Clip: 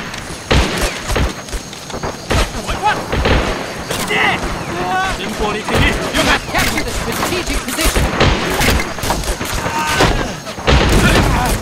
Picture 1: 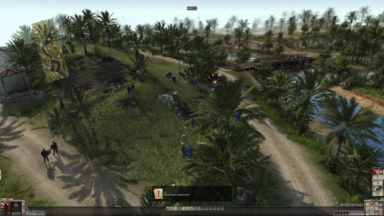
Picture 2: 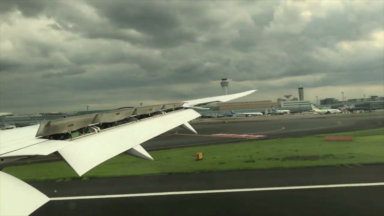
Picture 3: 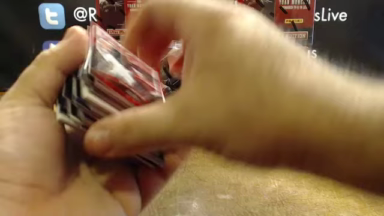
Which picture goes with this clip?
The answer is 1